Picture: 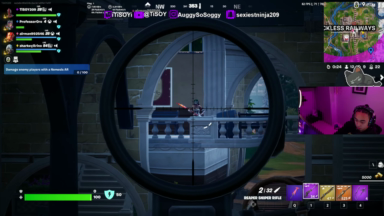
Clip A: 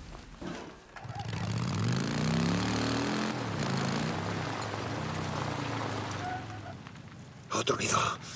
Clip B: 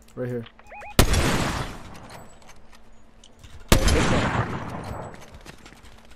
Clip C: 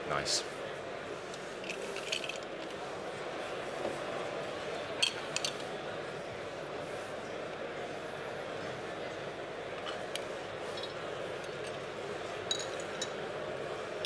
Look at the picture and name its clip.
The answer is B